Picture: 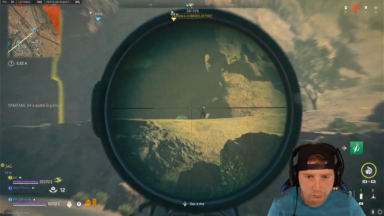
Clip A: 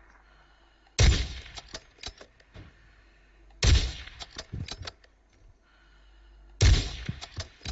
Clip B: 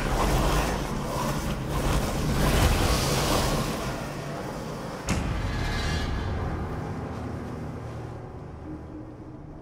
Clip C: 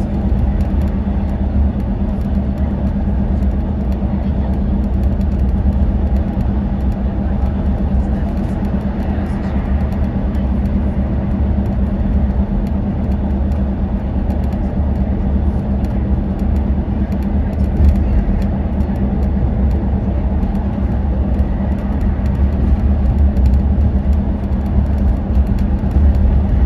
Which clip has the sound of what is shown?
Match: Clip A